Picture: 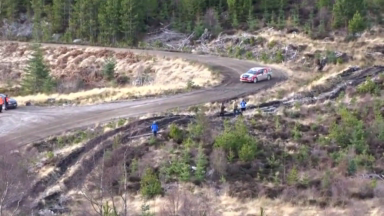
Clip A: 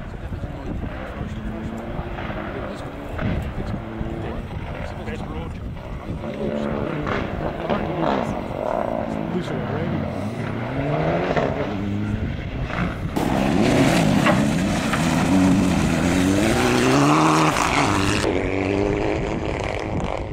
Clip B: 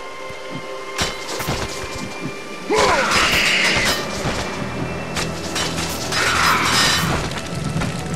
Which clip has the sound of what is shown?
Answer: A